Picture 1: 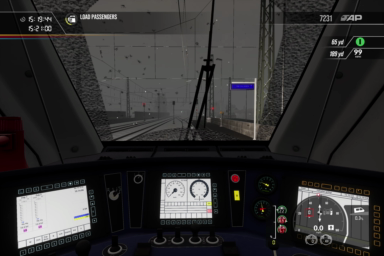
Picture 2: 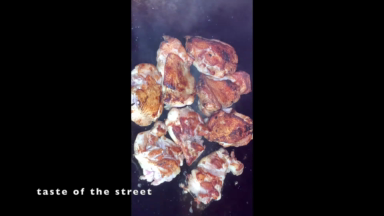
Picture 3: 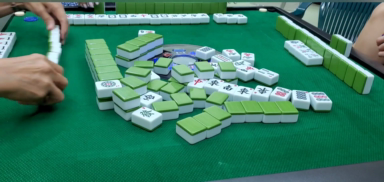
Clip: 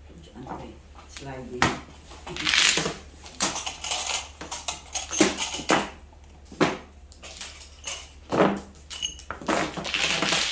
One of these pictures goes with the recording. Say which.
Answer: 3